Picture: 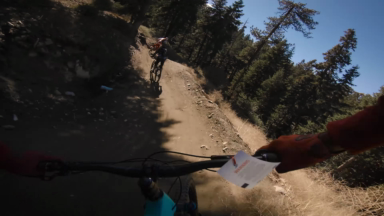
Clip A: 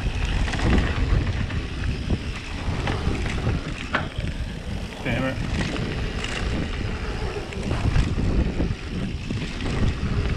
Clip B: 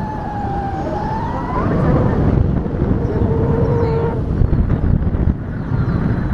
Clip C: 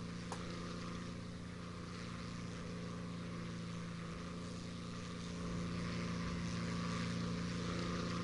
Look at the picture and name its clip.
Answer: A